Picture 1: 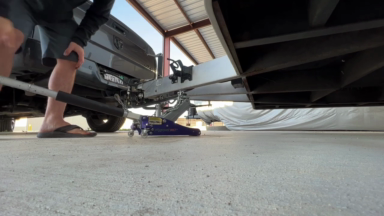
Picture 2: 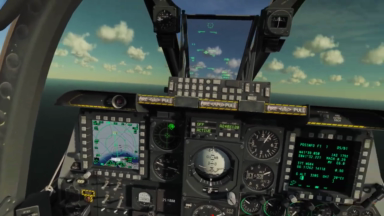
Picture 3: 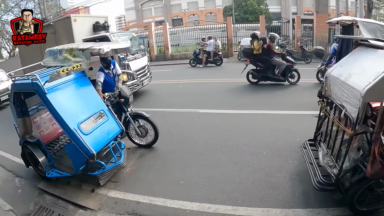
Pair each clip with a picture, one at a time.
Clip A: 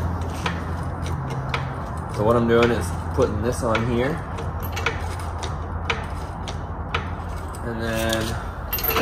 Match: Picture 1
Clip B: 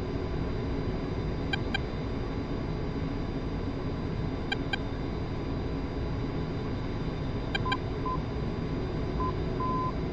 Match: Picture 2